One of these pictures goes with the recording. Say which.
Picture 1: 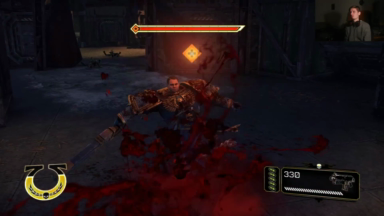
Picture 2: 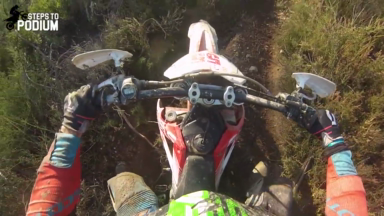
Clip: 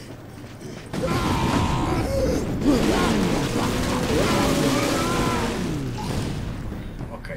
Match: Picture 1